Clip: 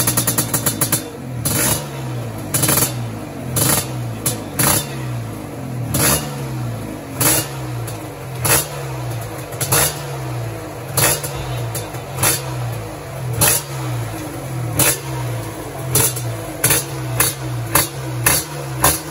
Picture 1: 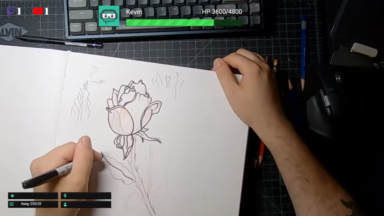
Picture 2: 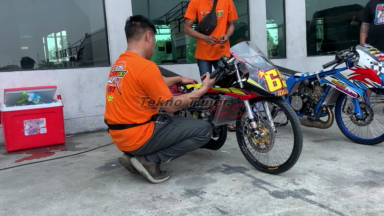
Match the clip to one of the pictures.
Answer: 2